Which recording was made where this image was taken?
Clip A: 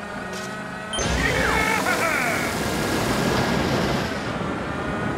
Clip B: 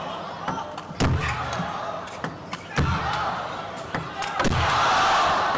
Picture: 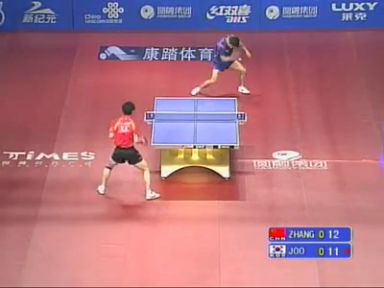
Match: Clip B